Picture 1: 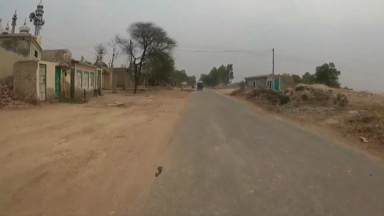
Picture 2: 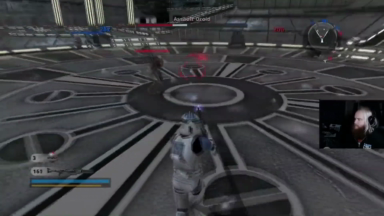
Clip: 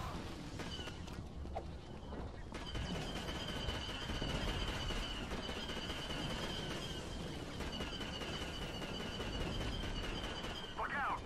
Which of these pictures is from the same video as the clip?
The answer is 2